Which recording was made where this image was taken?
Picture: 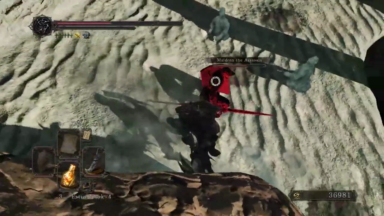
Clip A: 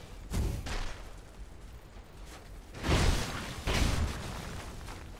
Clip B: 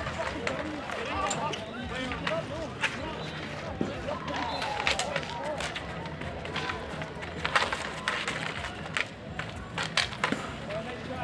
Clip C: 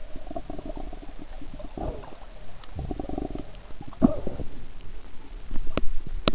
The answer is A